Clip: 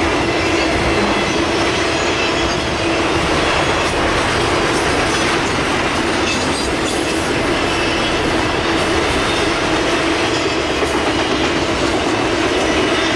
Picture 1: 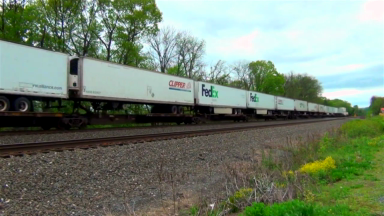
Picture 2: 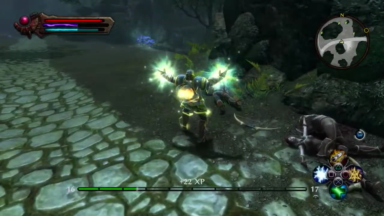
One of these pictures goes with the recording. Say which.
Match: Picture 1